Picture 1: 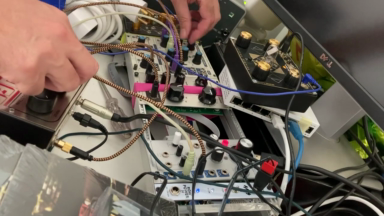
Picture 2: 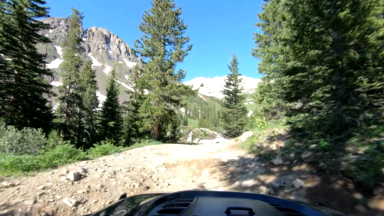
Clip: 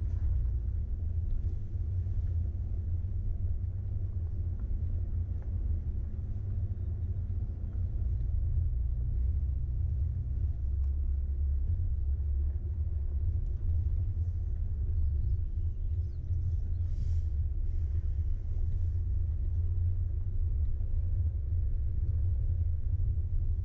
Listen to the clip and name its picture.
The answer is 2